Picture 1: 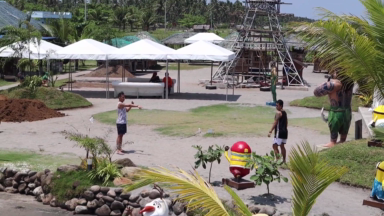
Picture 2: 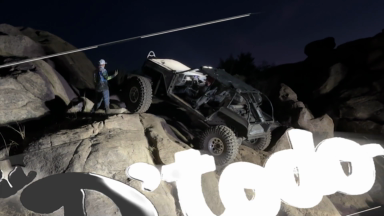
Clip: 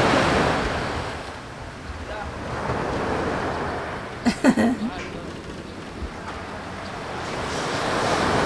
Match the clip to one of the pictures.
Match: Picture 1